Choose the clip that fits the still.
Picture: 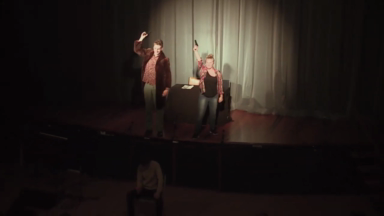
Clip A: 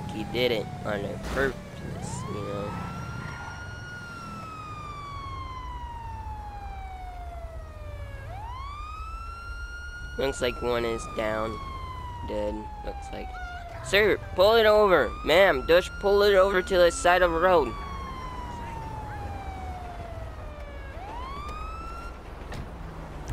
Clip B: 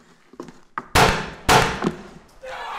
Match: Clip B